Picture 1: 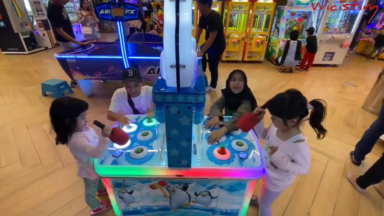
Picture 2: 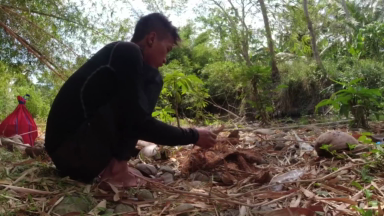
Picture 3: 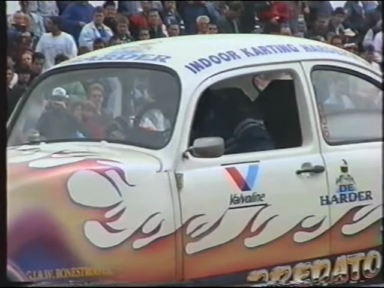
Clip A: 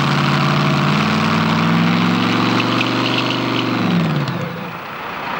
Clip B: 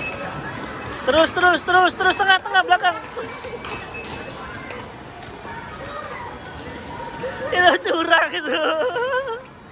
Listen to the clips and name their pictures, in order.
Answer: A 3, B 1